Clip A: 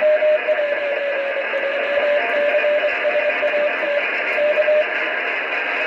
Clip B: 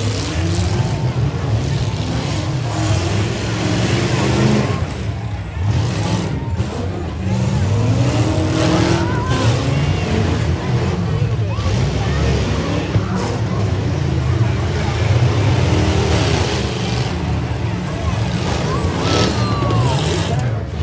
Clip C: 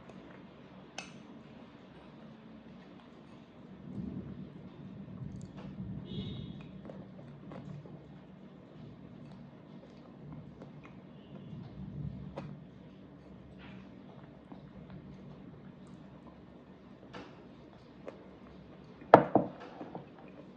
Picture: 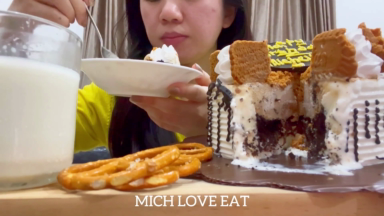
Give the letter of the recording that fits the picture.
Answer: C